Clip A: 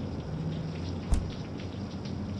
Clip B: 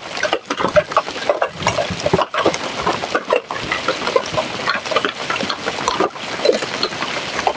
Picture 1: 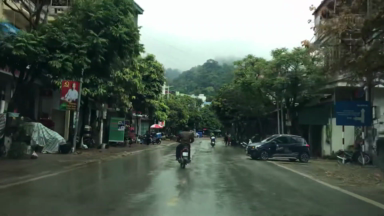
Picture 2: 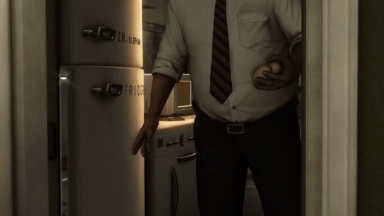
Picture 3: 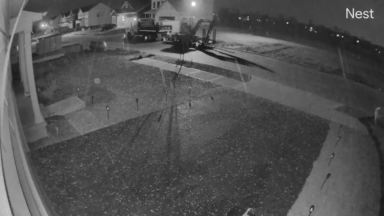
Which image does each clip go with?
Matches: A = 2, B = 3